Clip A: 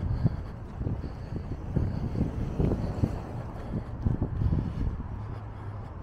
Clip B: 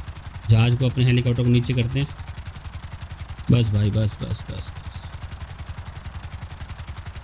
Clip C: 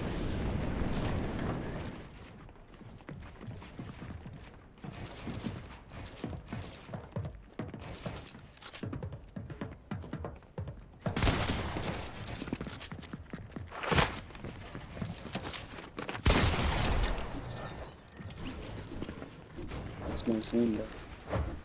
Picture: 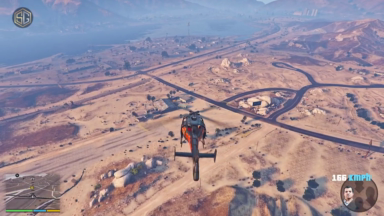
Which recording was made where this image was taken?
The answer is B